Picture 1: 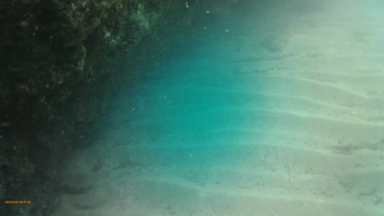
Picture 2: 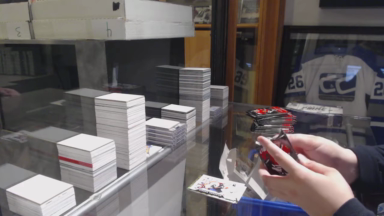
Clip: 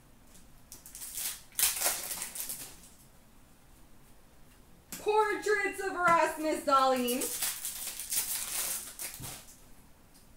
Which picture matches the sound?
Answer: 2